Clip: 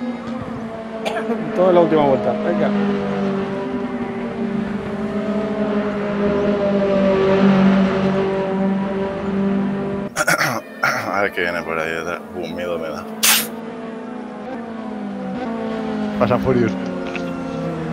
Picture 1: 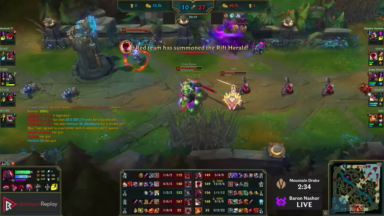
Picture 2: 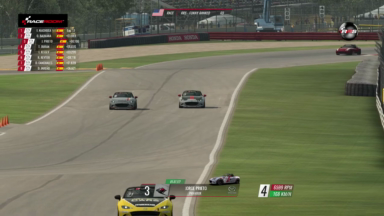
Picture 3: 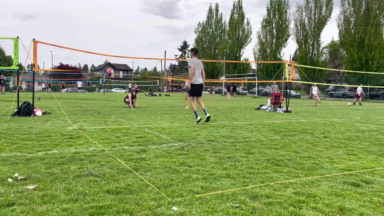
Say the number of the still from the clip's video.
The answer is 2